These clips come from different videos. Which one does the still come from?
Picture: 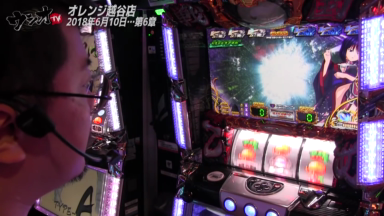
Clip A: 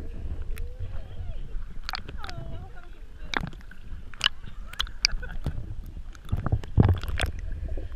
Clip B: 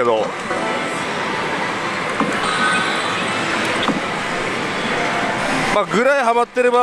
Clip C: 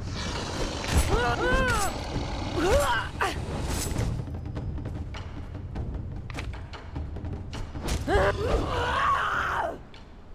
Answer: B